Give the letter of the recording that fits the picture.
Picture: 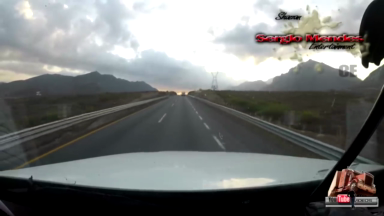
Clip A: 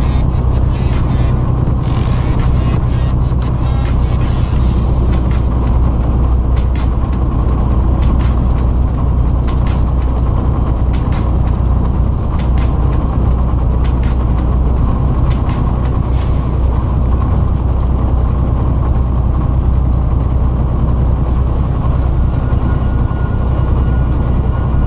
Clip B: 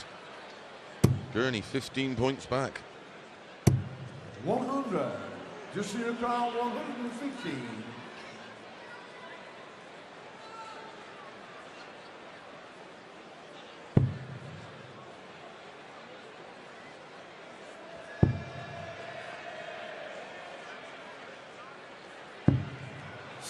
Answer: A